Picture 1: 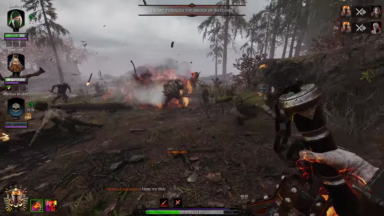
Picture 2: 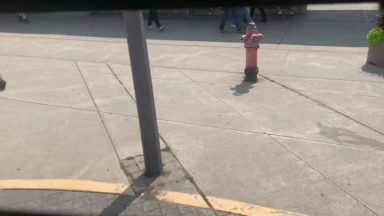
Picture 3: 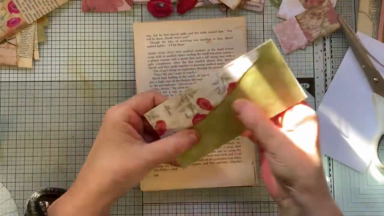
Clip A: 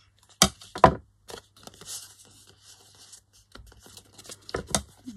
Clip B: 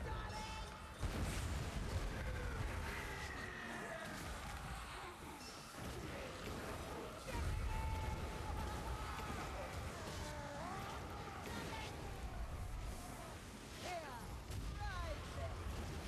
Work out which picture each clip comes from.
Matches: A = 3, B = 1